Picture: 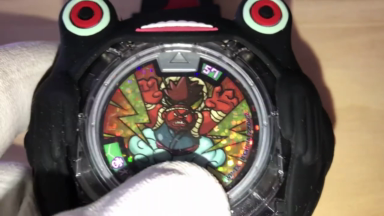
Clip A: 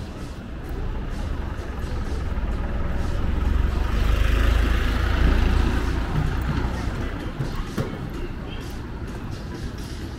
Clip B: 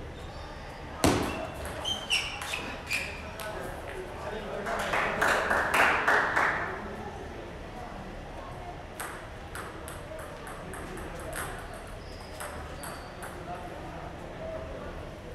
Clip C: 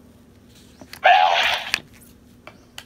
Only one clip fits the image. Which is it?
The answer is C